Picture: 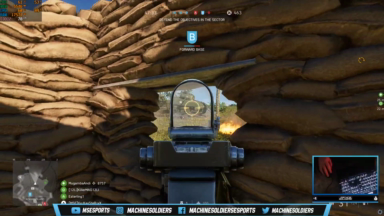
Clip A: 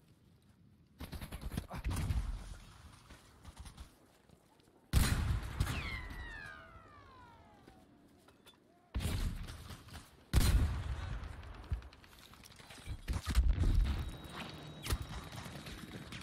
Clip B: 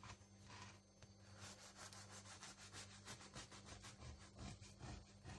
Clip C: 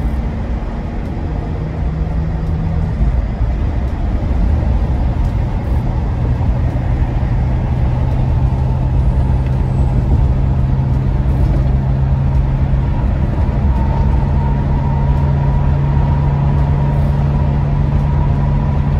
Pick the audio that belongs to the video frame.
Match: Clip A